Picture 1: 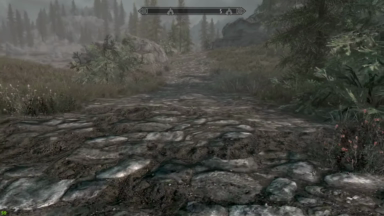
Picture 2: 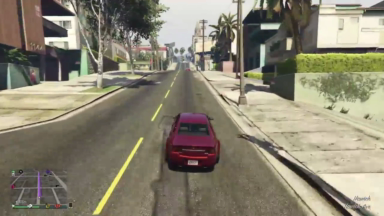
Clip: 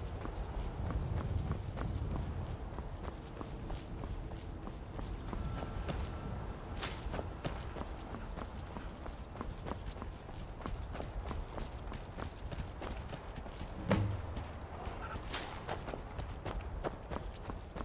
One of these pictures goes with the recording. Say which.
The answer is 1